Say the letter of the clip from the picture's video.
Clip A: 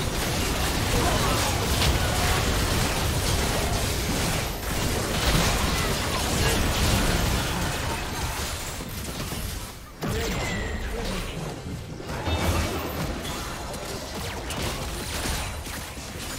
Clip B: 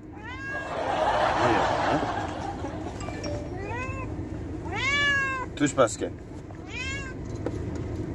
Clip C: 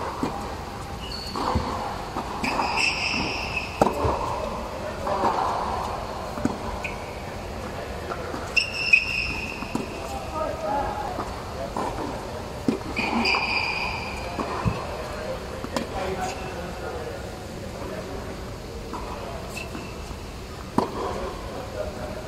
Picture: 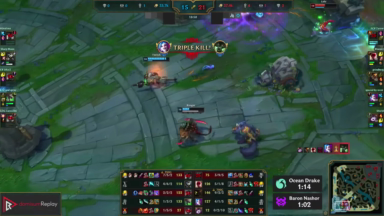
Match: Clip A